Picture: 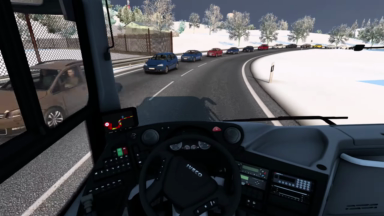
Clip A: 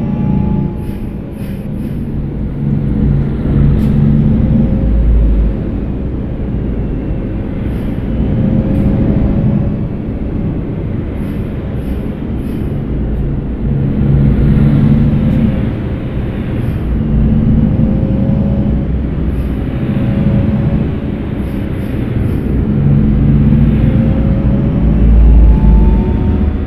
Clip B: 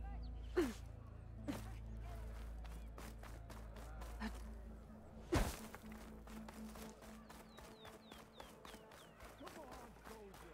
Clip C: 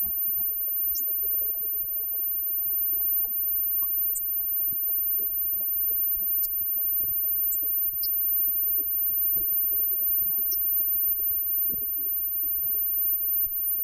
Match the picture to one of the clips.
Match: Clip A